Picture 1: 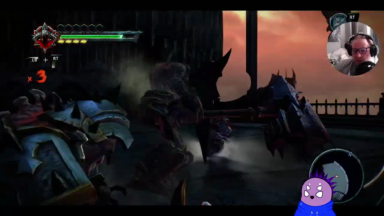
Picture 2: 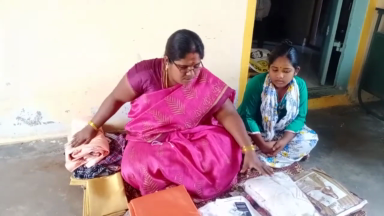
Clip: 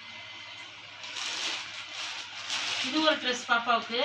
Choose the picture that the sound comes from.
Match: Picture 2